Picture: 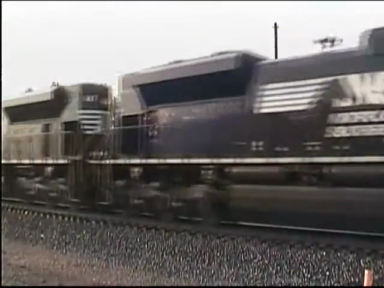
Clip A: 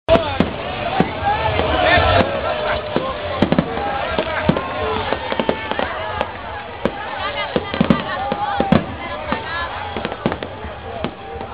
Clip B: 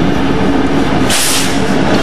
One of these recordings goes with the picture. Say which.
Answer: B